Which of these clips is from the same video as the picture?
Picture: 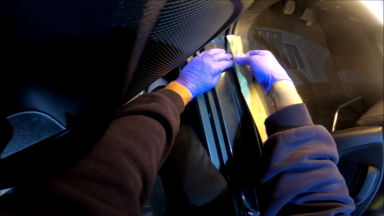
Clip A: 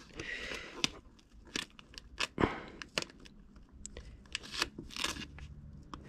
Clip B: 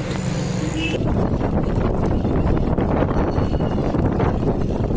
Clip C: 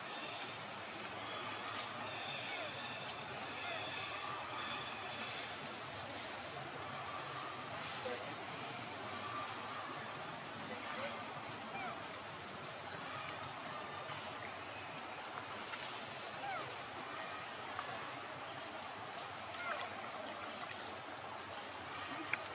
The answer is A